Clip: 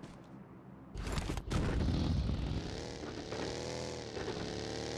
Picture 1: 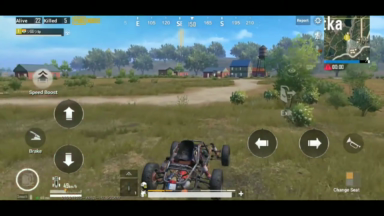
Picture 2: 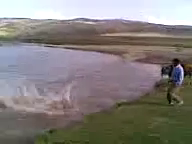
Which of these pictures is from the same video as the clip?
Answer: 1